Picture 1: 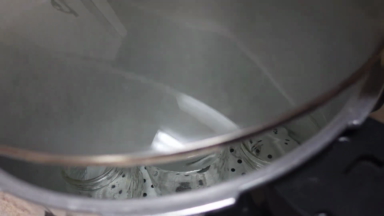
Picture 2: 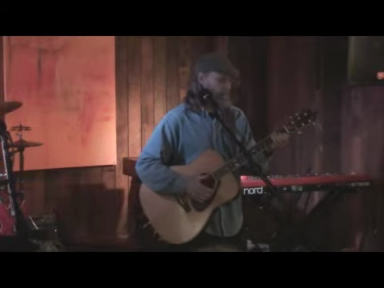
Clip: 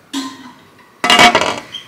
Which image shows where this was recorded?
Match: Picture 1